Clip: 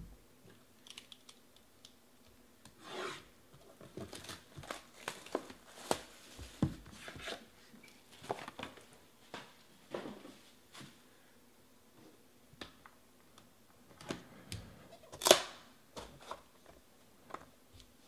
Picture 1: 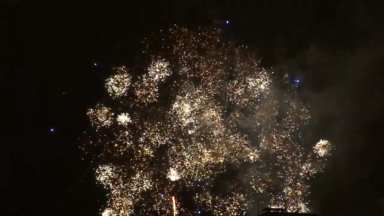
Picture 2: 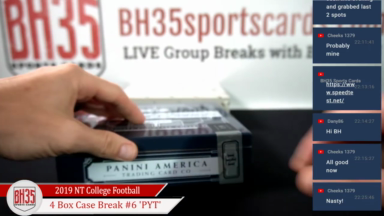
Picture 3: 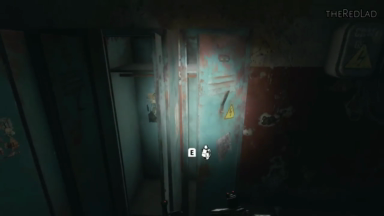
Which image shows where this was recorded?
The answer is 2